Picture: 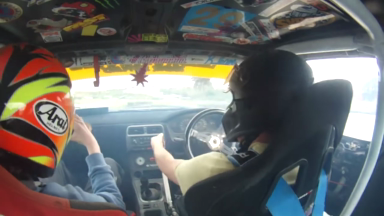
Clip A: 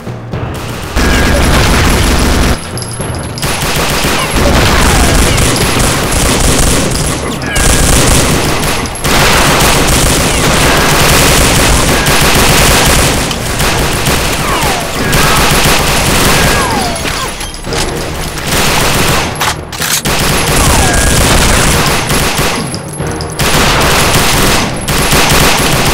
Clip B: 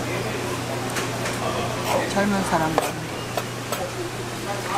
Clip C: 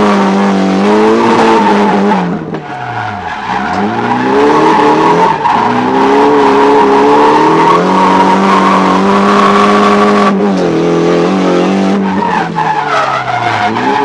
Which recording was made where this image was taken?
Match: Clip C